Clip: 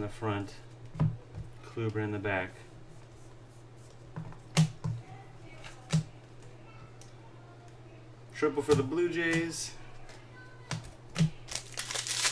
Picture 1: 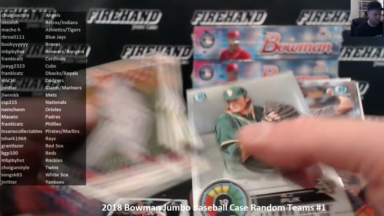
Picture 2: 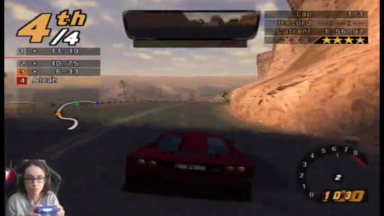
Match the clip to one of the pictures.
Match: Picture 1